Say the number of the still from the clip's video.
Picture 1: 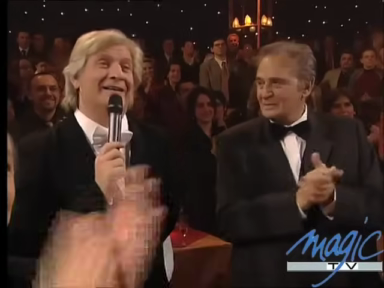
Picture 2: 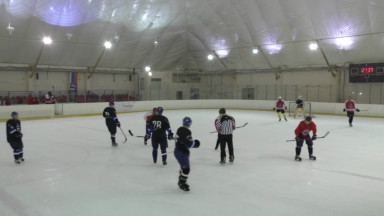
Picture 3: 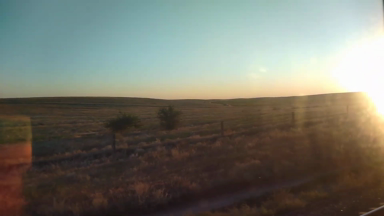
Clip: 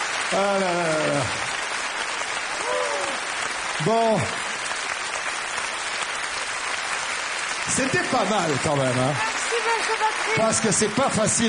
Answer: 1